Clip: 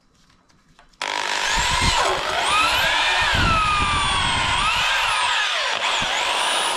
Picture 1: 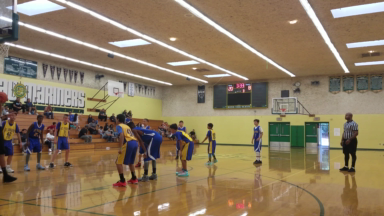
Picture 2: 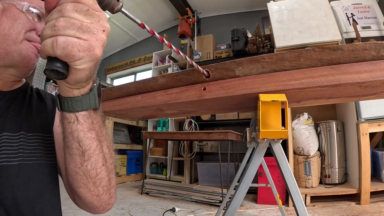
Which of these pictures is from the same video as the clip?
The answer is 2